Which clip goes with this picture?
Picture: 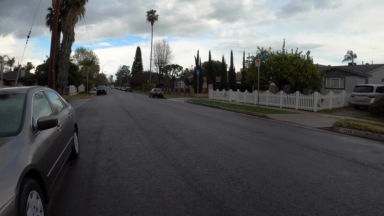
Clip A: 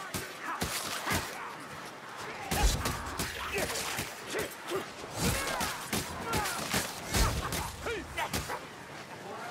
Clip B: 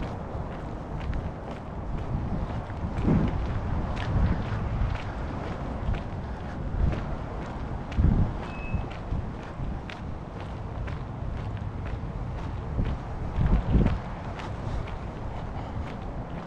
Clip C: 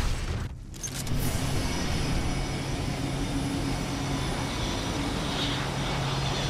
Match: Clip B